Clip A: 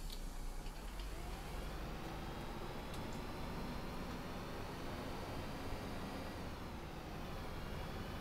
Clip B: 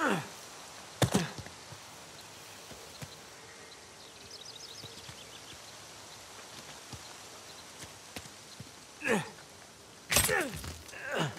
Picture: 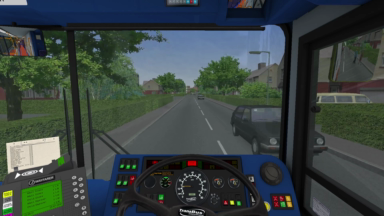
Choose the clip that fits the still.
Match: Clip A